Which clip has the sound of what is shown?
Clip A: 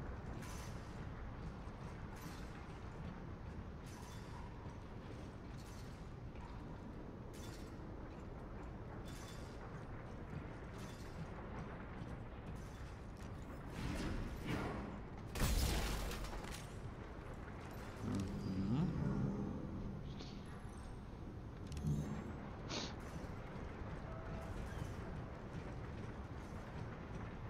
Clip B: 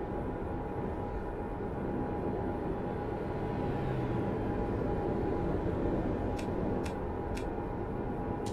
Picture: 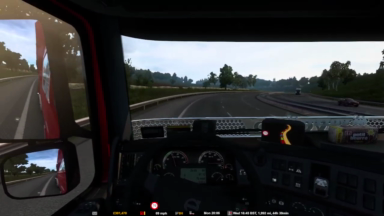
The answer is B